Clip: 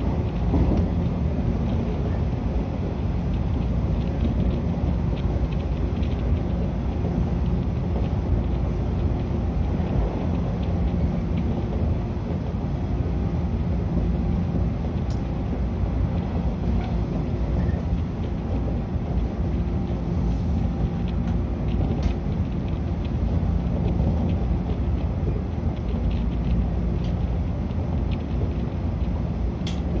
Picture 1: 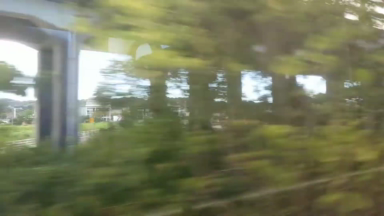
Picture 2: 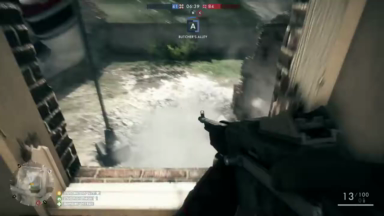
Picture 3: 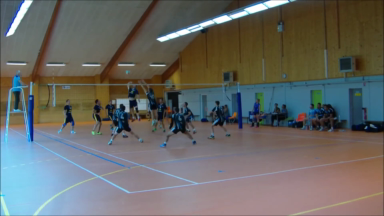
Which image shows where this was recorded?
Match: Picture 1